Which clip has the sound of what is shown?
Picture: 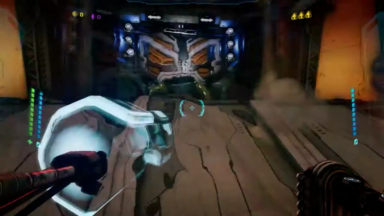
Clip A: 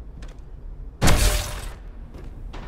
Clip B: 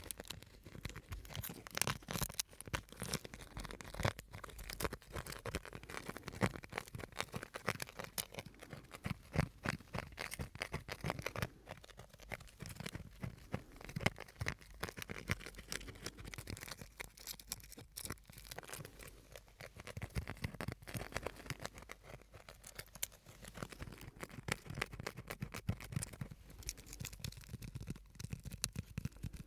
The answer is A